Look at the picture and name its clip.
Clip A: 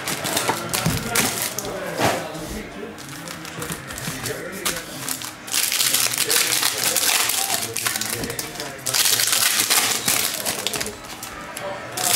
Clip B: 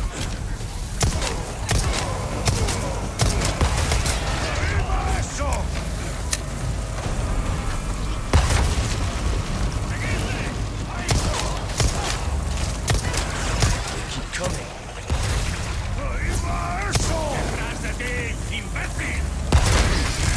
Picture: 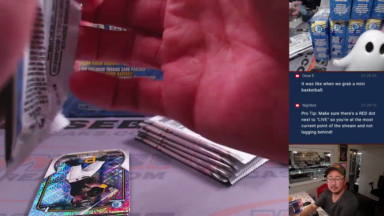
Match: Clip A